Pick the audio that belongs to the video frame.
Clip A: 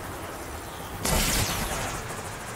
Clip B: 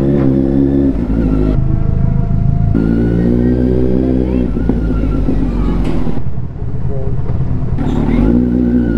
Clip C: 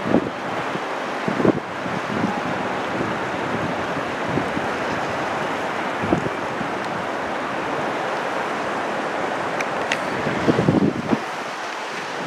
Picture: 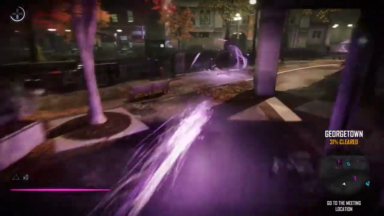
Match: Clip A